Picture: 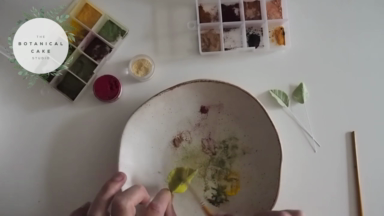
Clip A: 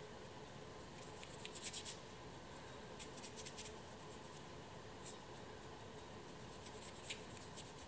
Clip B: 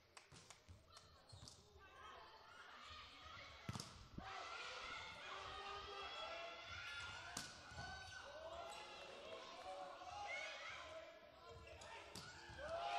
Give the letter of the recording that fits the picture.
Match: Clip A